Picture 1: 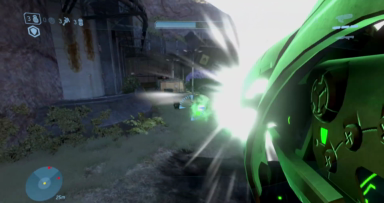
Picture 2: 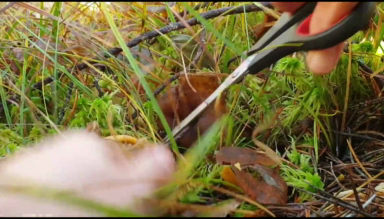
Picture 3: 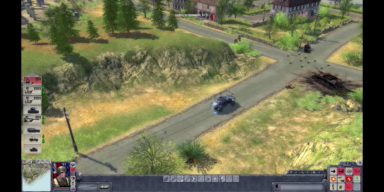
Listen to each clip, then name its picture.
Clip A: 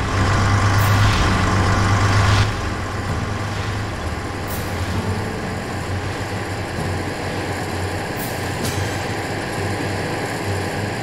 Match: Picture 3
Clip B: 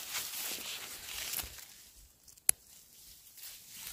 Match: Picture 2